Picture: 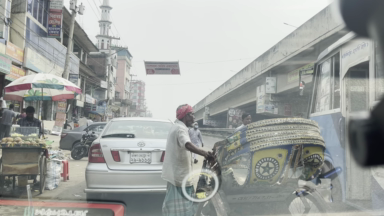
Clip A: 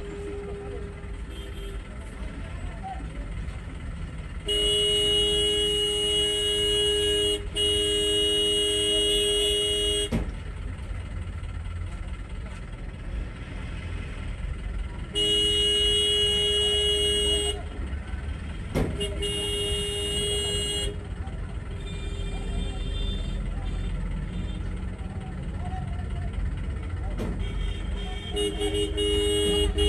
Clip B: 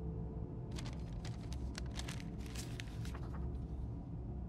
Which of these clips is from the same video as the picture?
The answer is A